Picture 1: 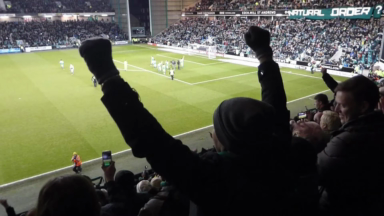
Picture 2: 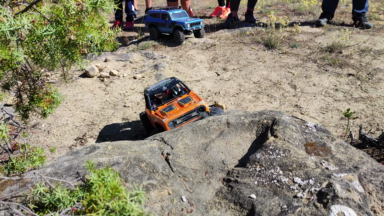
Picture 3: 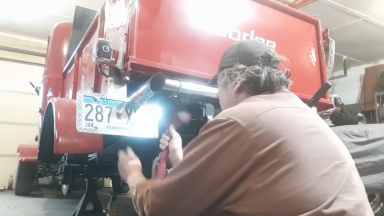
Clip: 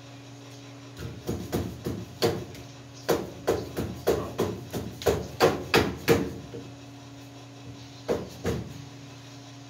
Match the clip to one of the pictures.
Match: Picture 3